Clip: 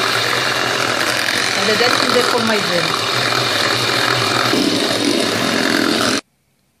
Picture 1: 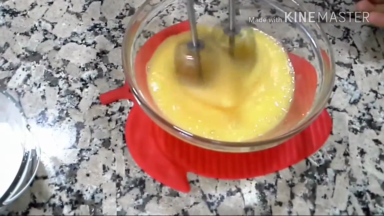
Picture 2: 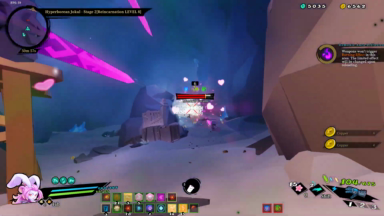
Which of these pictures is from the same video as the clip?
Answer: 1